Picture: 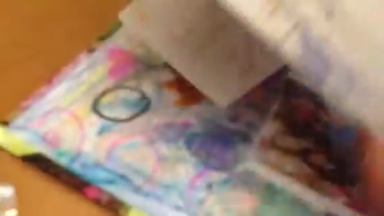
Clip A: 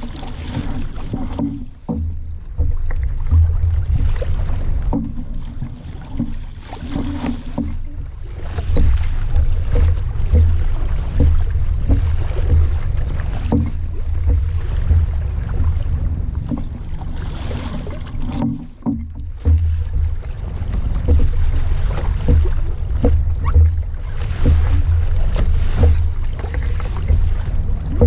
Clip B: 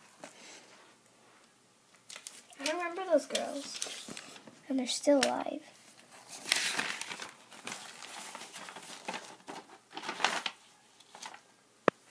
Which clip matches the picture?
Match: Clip B